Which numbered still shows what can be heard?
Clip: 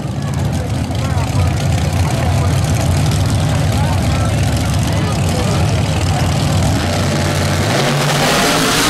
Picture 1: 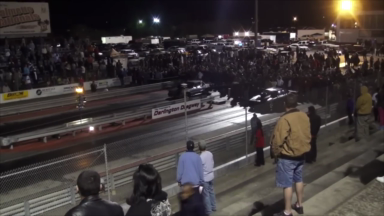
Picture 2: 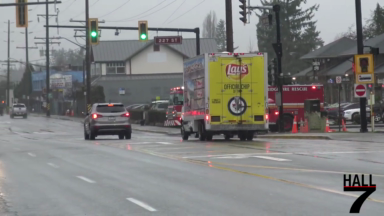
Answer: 1